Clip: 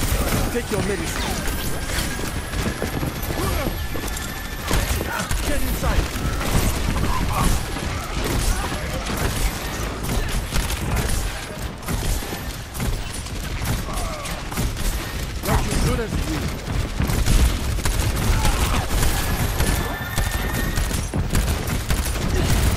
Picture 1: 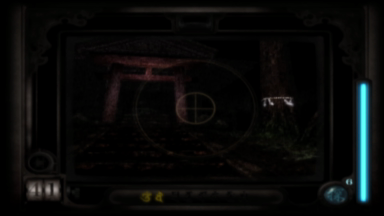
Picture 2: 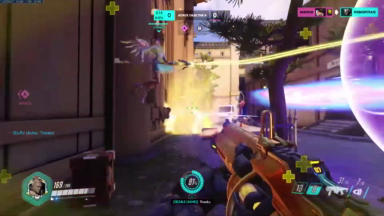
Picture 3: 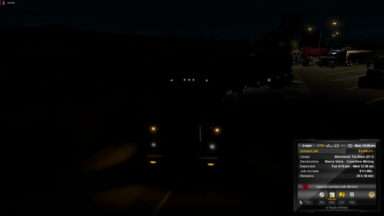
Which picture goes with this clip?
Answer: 2